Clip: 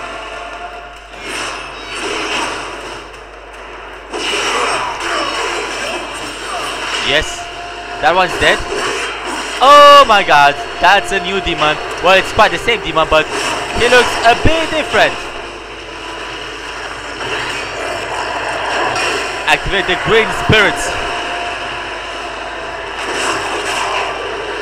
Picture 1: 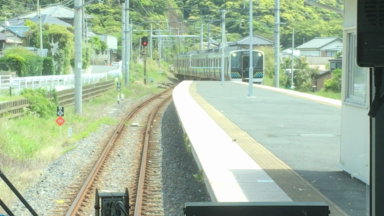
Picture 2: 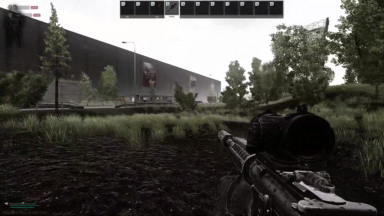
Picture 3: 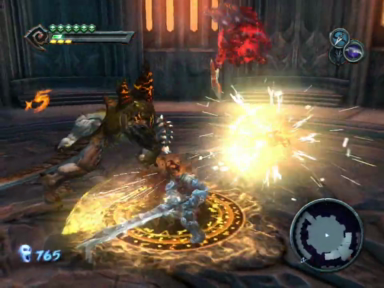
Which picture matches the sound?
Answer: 3